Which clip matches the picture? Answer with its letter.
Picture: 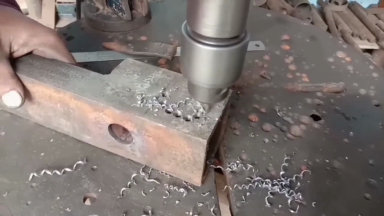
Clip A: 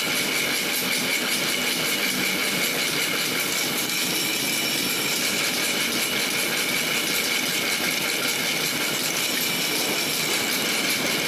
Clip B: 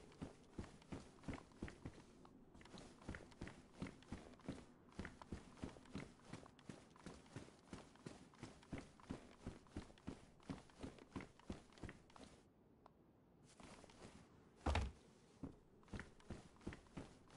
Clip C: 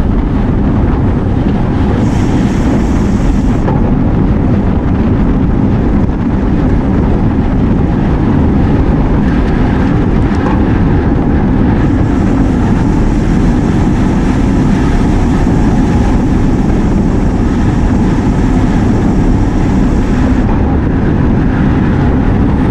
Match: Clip A